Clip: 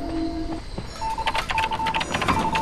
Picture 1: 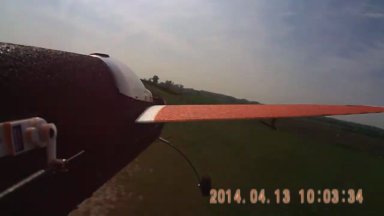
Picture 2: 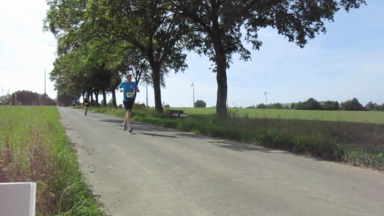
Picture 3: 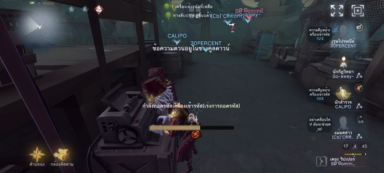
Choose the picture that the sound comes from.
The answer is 3